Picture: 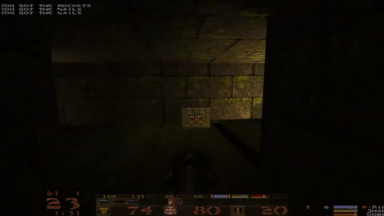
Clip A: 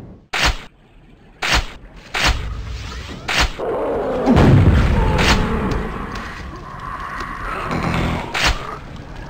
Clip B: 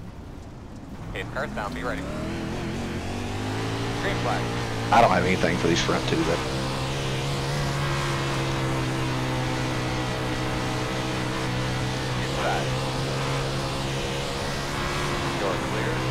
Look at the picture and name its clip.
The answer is A